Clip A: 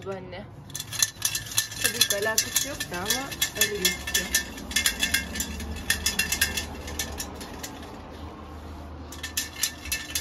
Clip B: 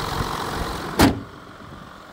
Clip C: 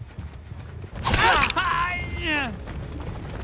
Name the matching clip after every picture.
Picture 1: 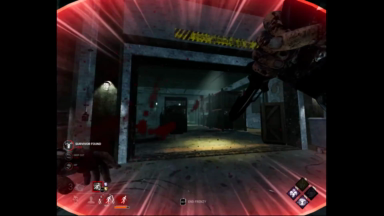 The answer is C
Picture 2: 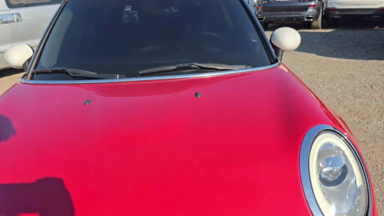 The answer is B